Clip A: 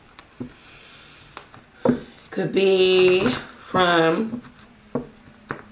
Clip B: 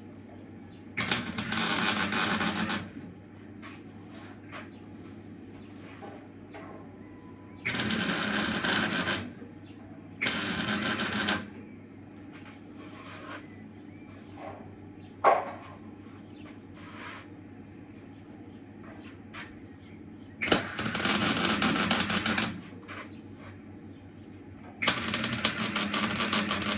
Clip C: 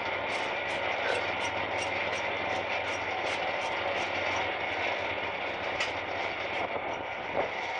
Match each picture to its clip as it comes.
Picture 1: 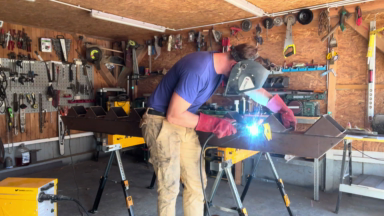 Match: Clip B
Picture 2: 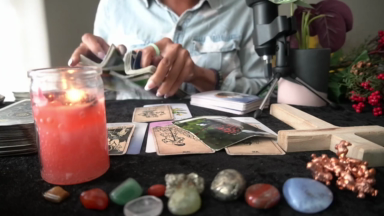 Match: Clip A